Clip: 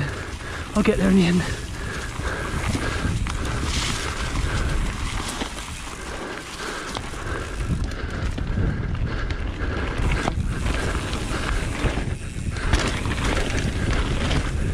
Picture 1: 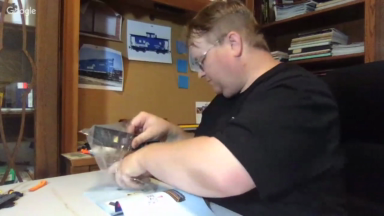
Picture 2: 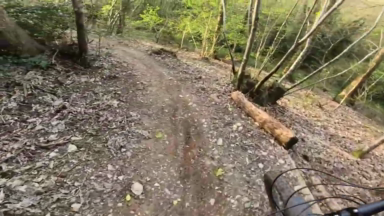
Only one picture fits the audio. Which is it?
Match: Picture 2